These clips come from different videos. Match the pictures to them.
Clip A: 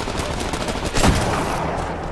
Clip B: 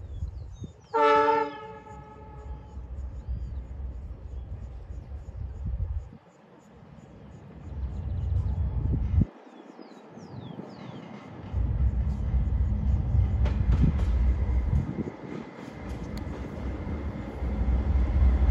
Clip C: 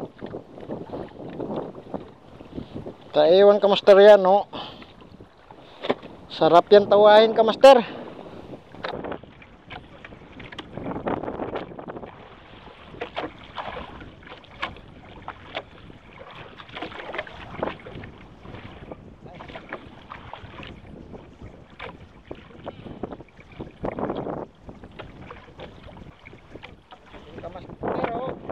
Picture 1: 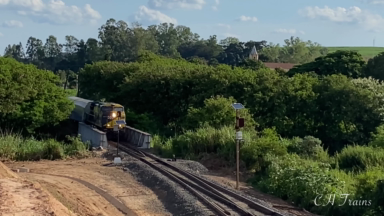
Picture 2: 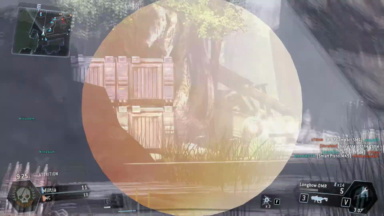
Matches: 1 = B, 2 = A